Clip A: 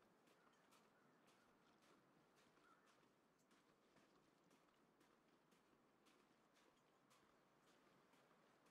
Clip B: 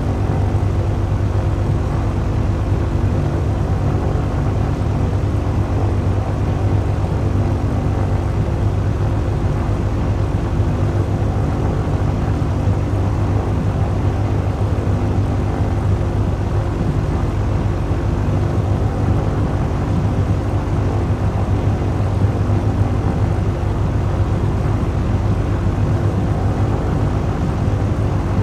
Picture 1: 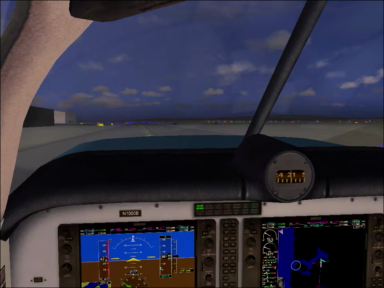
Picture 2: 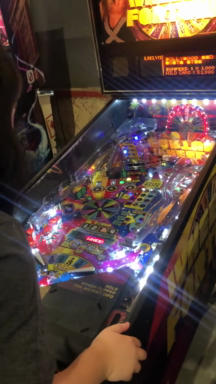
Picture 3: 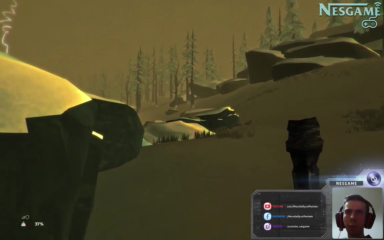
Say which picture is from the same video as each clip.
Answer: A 3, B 1